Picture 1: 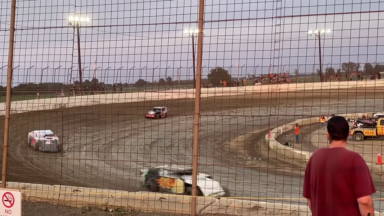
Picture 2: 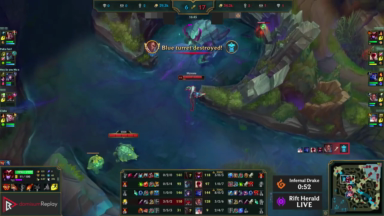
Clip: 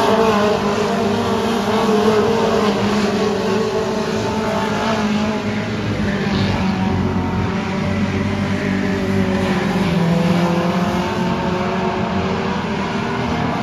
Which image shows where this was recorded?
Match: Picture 1